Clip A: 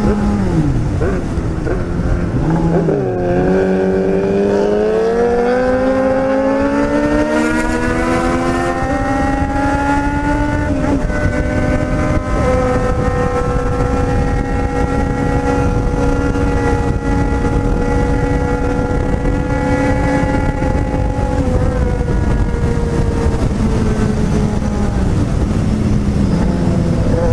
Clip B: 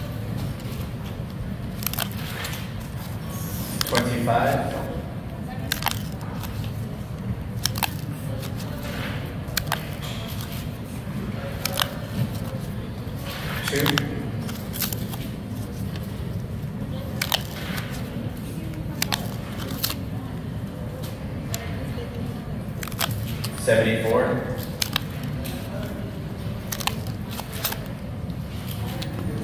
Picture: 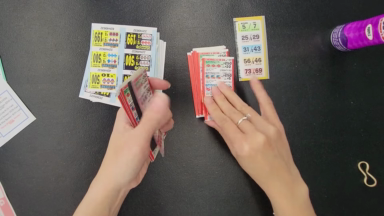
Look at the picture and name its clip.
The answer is B